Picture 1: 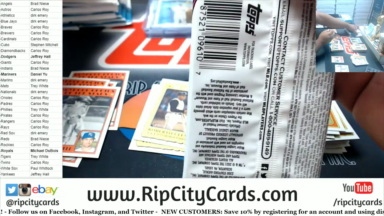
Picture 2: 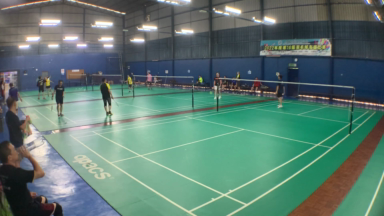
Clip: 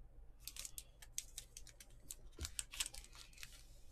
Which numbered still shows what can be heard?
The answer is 1